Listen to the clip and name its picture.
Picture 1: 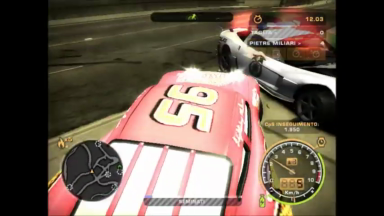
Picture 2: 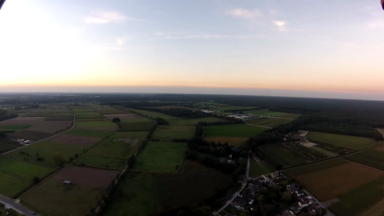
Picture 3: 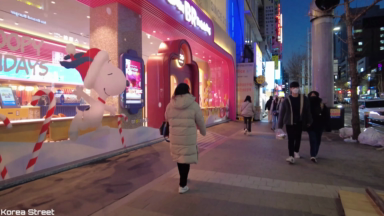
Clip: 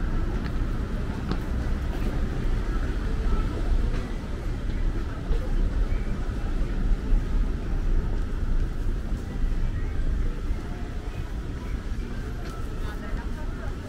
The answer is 3